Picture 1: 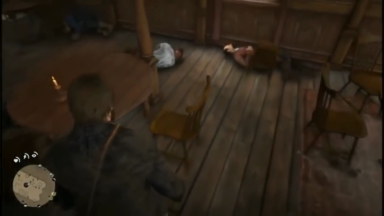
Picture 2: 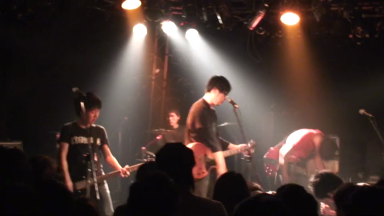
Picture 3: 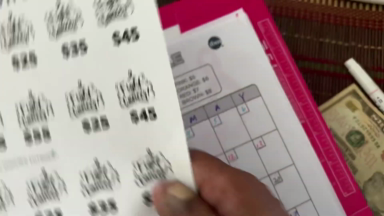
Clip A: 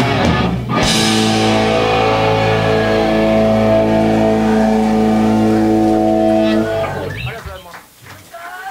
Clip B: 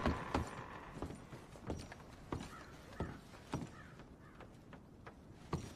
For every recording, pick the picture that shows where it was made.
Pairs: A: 2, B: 1